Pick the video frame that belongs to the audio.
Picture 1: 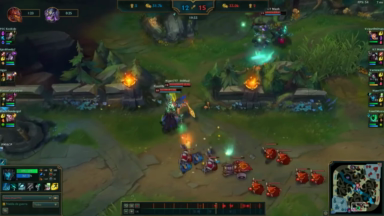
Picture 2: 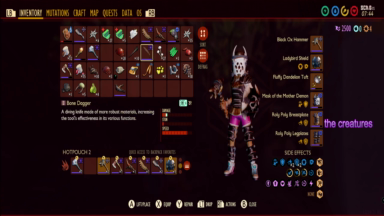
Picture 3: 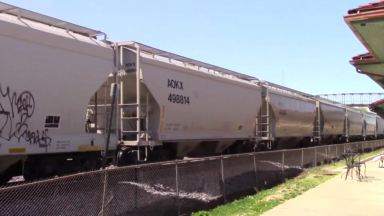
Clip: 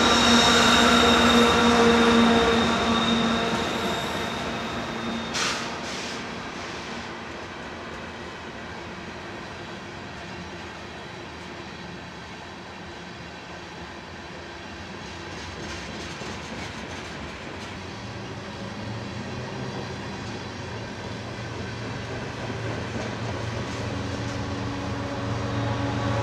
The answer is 3